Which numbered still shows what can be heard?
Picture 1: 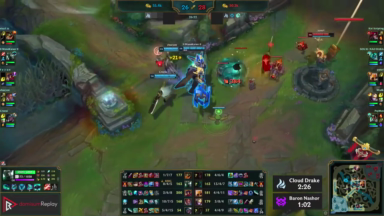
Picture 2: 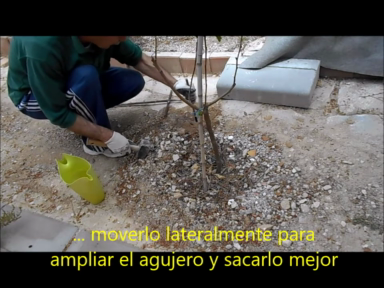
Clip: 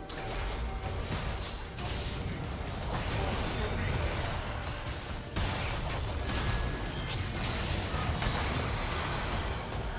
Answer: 1